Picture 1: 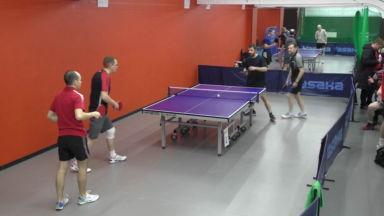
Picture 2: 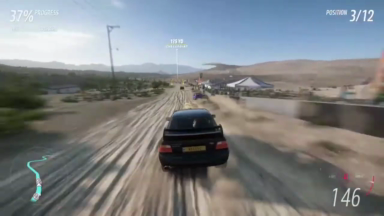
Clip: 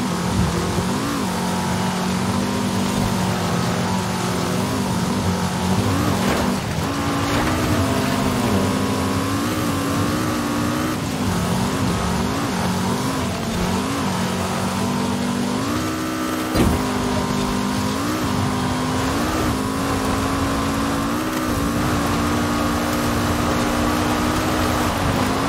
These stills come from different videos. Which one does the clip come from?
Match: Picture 2